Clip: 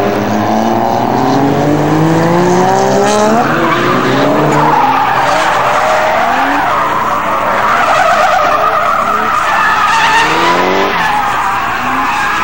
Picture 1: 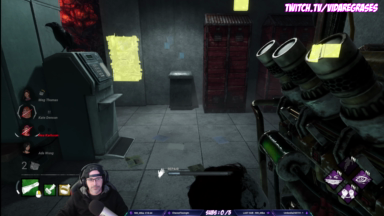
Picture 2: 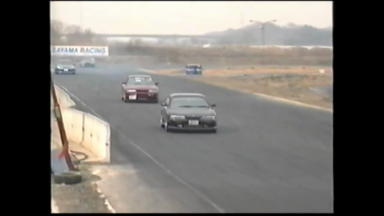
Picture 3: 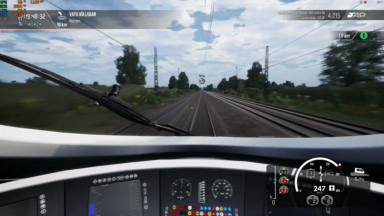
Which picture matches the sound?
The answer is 2